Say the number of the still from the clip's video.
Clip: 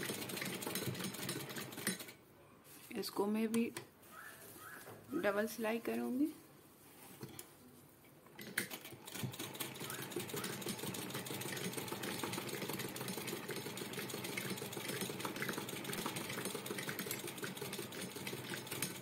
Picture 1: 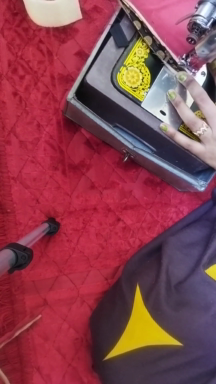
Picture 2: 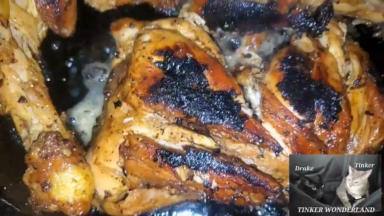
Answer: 1